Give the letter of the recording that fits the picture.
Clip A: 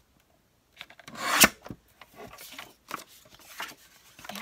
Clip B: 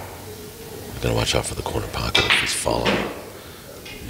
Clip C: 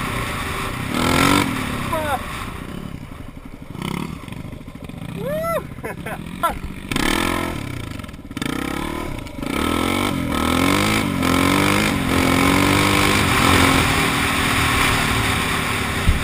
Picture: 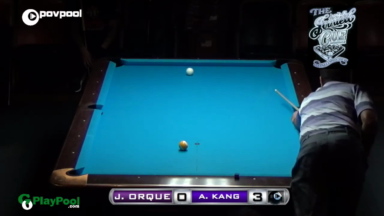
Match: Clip B